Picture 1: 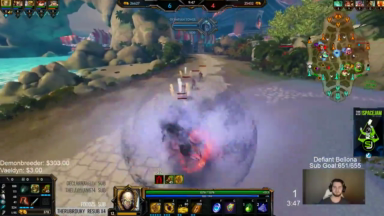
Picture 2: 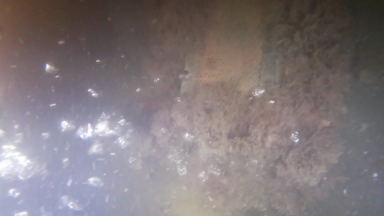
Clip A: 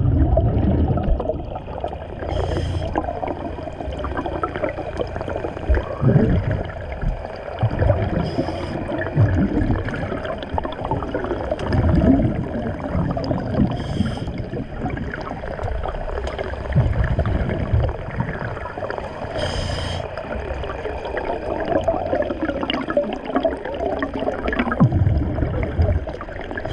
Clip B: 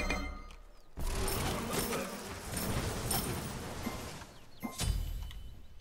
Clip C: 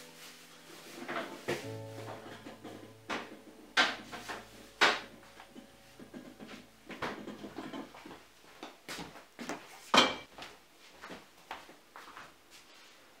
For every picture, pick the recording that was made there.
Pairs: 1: B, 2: A